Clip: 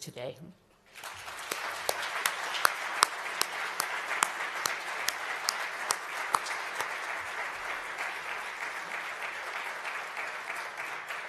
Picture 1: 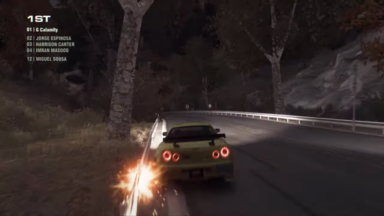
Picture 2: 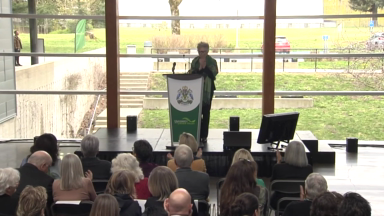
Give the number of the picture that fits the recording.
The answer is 2